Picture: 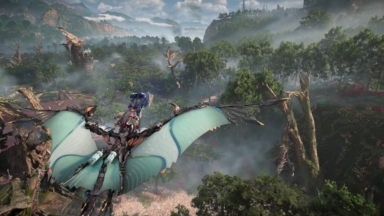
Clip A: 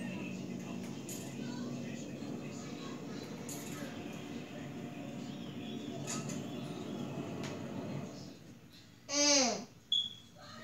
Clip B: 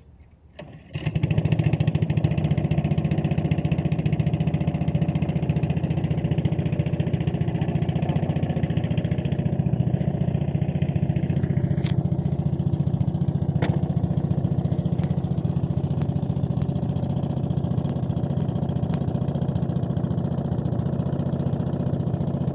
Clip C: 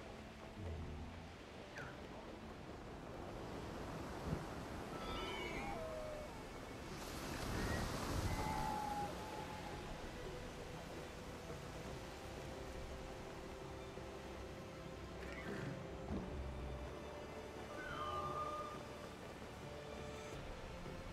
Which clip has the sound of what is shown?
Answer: C